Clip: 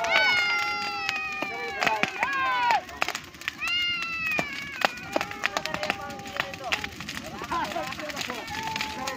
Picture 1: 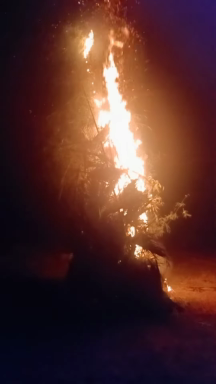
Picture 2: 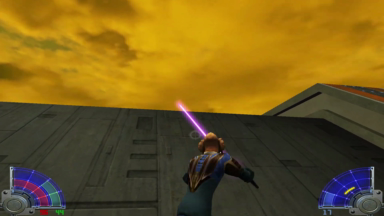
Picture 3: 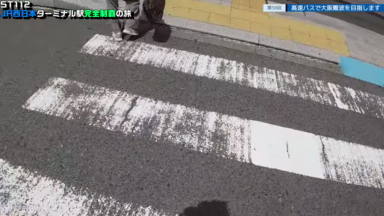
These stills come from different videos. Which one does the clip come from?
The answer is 1